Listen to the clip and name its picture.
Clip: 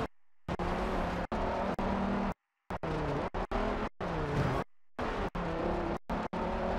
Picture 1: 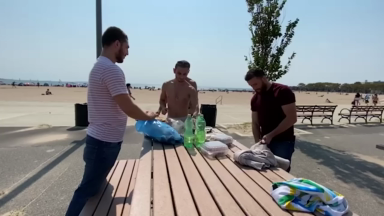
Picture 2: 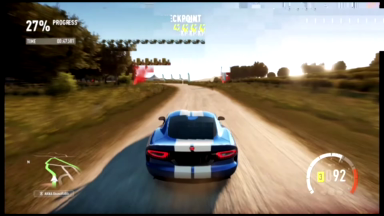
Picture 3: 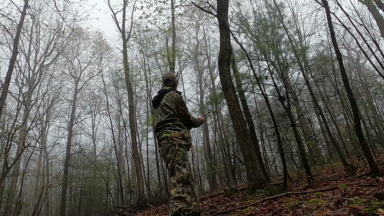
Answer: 2